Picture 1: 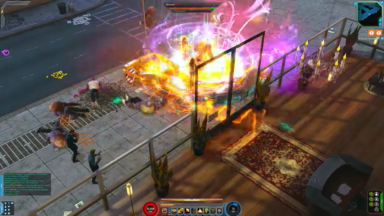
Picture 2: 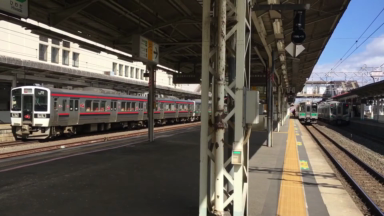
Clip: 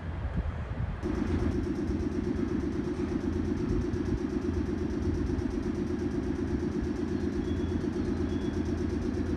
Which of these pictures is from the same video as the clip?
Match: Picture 2